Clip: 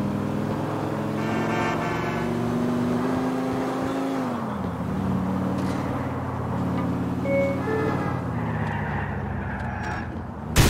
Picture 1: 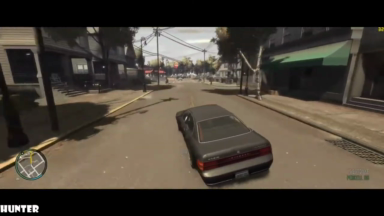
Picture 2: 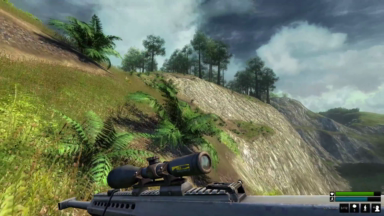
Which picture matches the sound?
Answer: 1